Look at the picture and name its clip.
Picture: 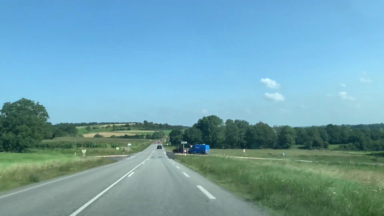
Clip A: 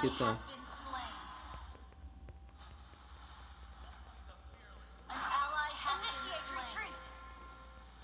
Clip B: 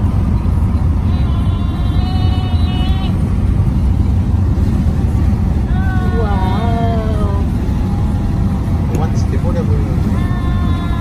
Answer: B